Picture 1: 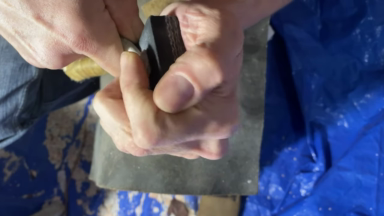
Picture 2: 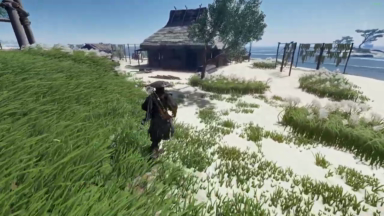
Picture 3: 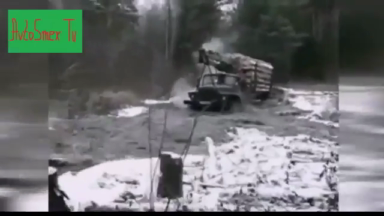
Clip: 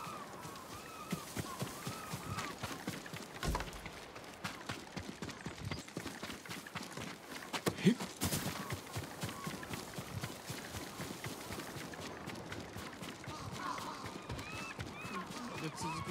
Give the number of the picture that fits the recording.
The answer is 2